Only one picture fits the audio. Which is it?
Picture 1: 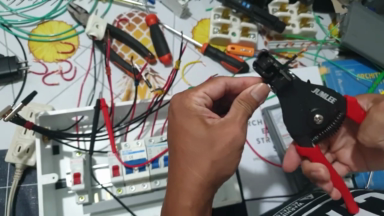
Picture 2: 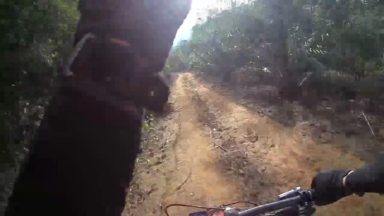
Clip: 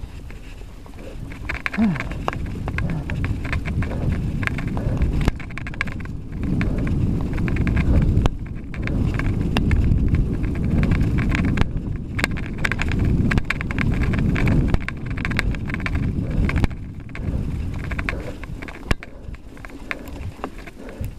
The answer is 2